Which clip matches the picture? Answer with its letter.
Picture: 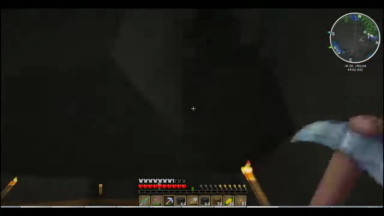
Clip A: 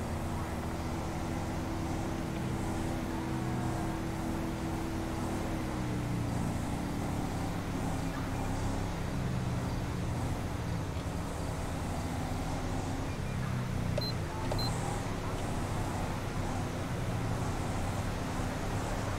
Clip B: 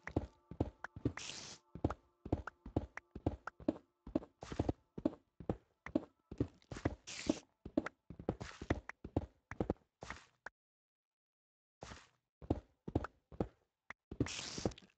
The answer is B